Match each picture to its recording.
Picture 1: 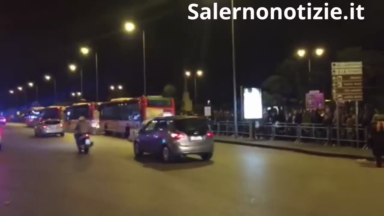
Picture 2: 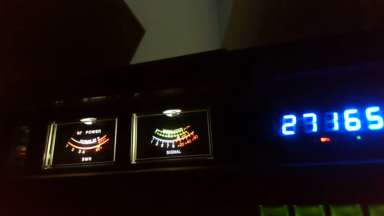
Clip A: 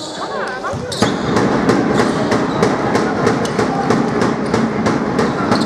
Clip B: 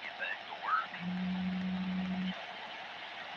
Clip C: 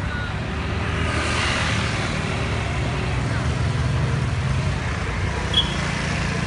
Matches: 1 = C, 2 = B